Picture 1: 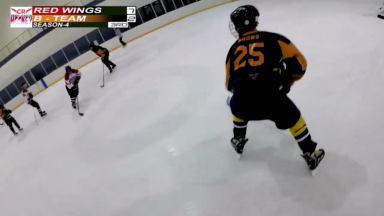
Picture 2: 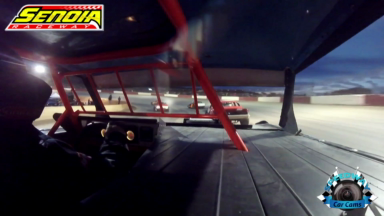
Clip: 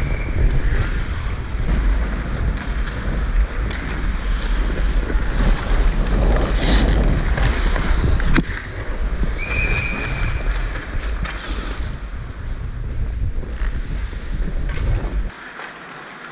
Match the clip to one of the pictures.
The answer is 1